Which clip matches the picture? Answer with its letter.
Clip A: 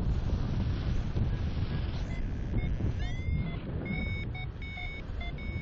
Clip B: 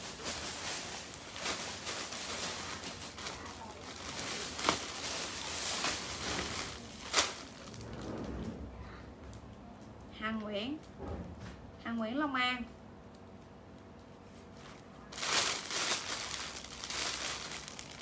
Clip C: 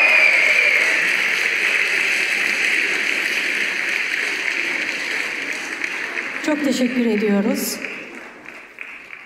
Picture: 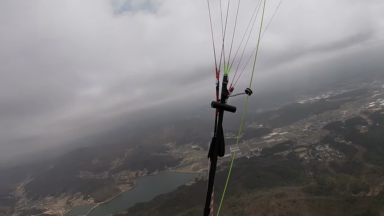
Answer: A